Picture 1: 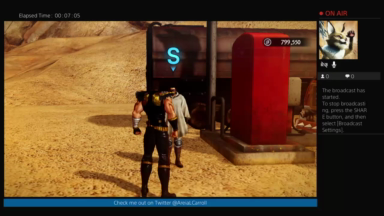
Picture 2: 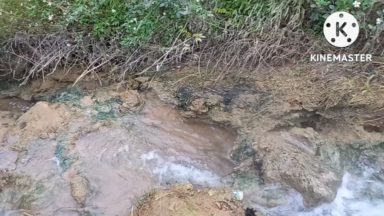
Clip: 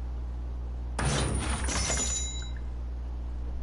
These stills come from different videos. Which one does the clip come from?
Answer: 1